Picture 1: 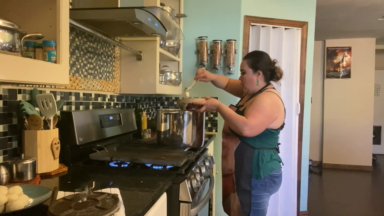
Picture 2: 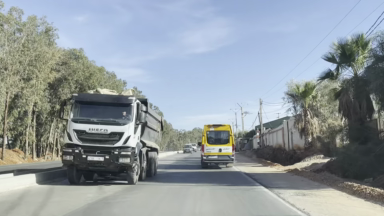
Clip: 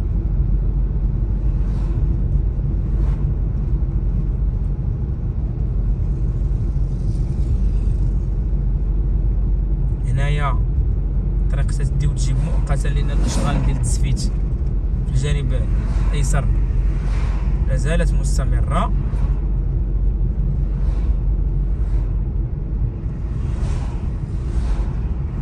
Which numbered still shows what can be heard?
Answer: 2